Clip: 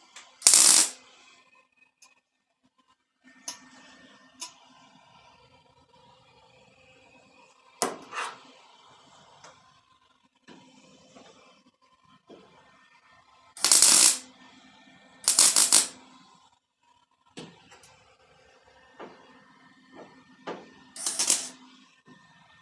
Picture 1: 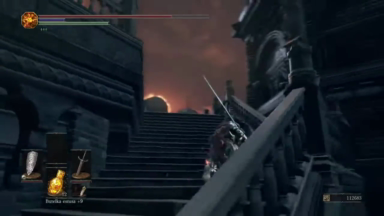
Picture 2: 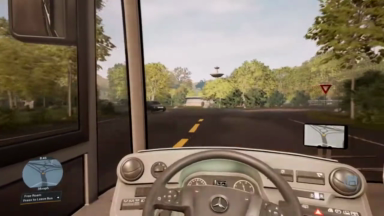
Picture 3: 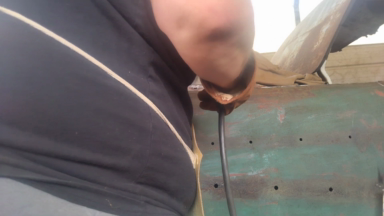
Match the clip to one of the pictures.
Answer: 3